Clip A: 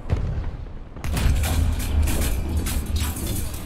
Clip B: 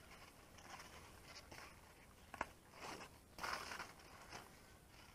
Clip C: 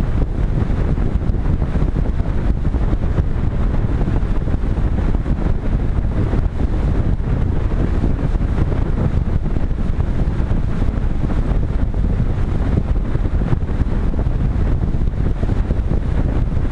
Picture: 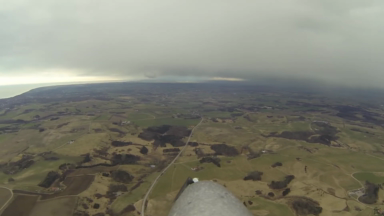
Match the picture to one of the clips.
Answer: C